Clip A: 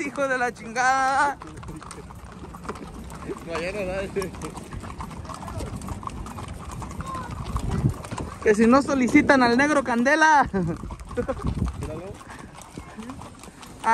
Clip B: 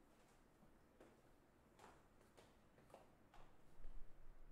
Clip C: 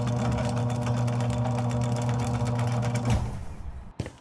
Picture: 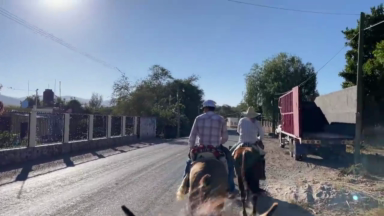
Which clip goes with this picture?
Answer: A